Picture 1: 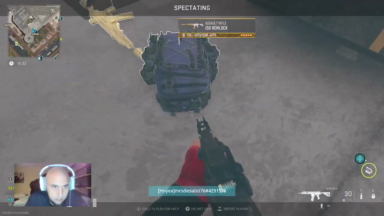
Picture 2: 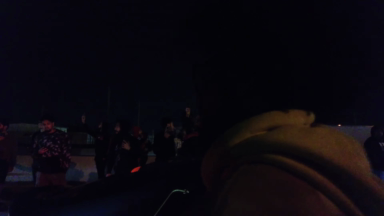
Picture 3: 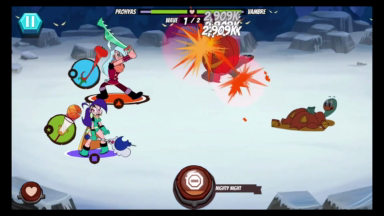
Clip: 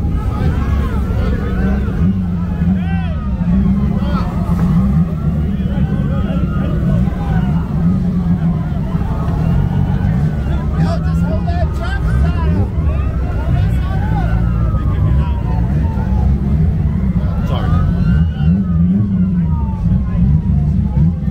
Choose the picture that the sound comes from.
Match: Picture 2